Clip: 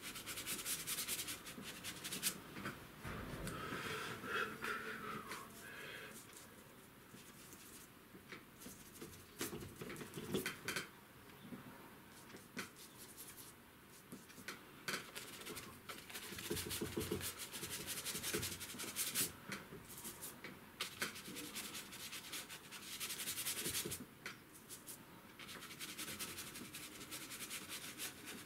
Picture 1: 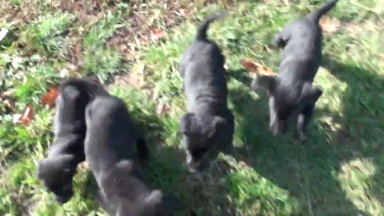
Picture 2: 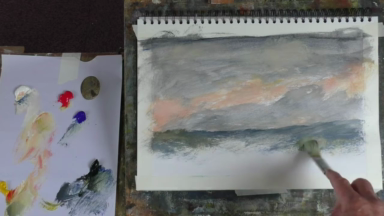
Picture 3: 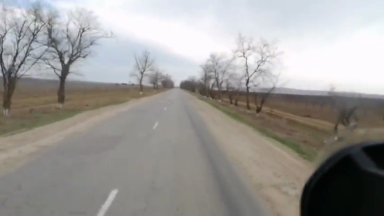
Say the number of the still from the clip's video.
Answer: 2